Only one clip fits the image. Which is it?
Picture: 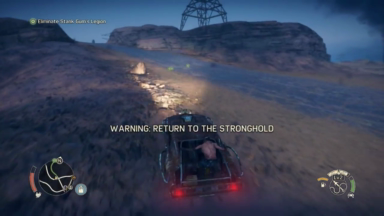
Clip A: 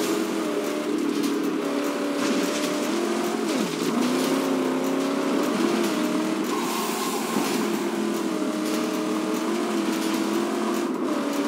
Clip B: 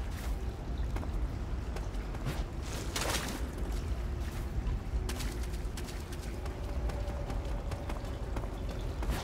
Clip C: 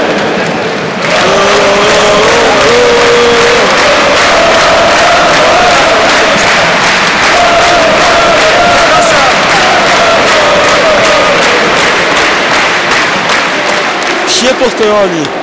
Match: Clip A